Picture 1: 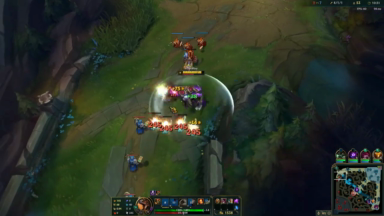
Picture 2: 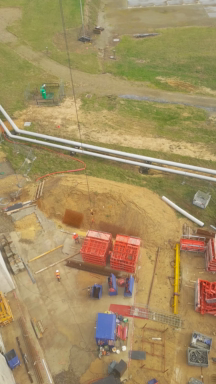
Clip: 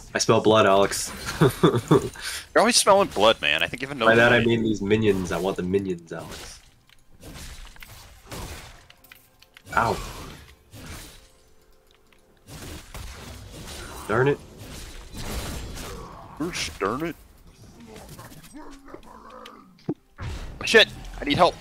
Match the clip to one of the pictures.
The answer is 1